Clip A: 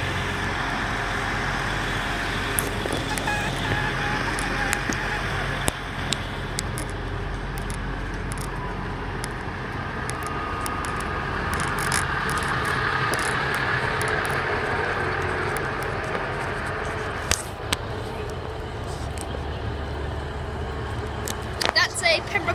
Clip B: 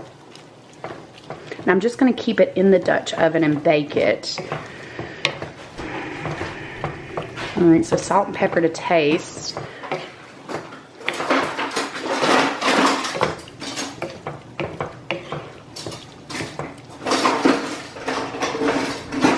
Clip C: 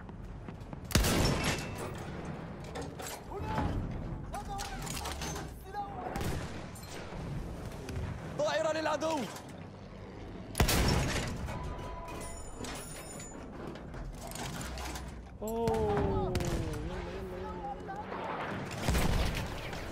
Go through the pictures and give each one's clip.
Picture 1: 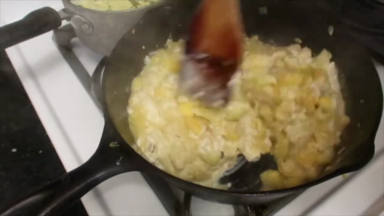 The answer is B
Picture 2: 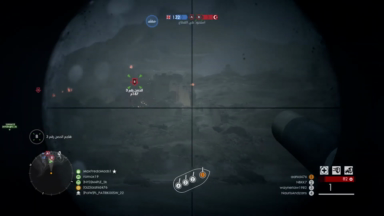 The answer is C